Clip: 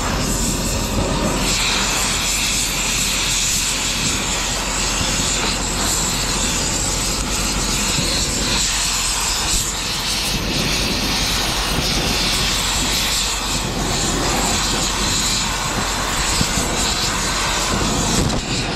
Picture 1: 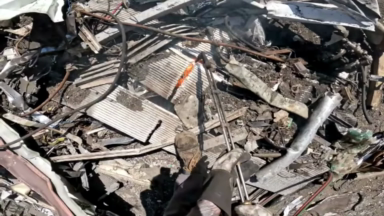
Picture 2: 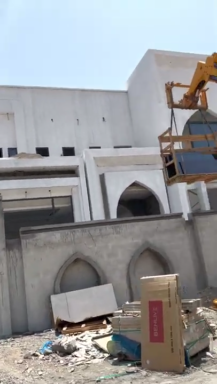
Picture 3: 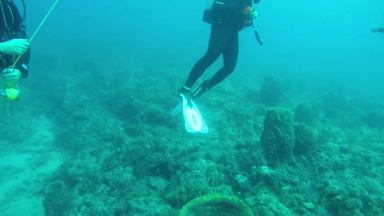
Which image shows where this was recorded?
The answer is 1